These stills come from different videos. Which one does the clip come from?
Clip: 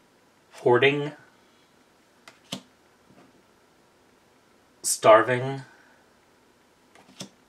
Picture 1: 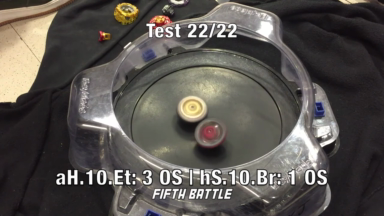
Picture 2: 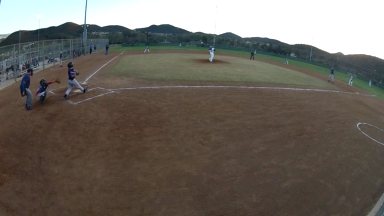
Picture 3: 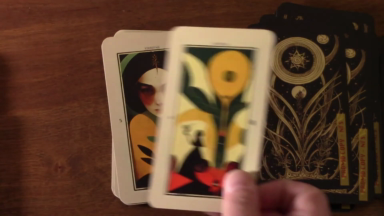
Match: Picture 3